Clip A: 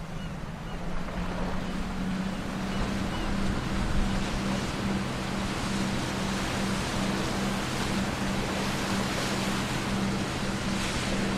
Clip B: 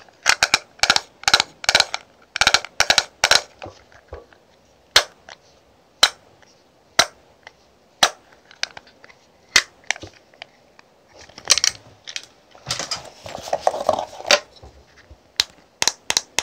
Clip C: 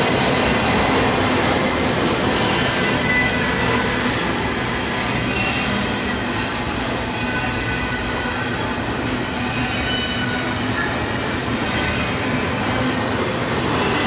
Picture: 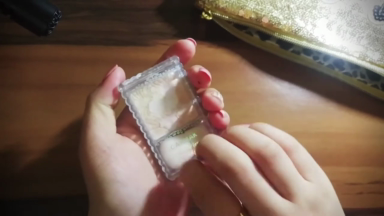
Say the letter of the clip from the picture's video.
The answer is B